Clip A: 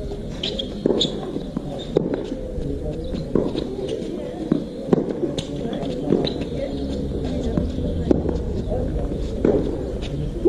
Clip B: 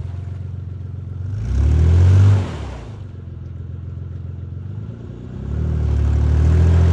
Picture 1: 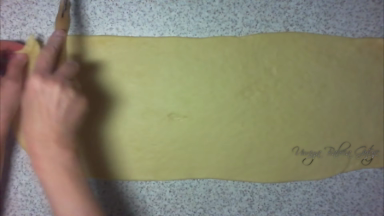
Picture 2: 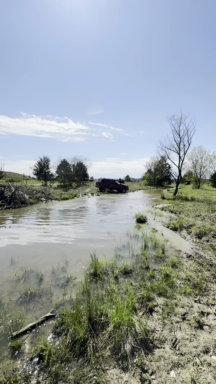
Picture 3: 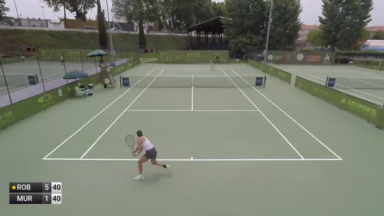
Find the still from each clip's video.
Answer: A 3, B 2